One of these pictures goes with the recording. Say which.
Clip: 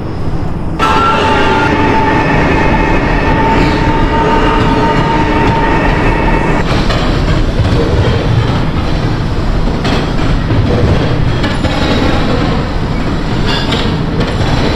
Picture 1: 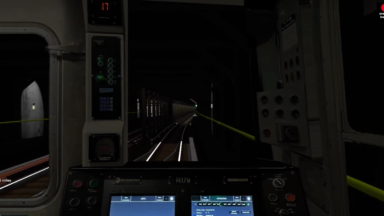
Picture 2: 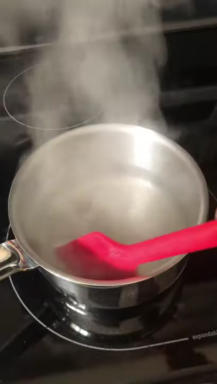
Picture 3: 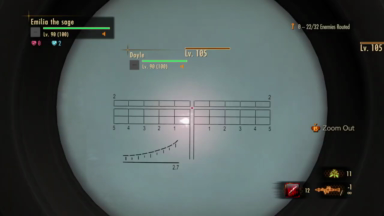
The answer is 1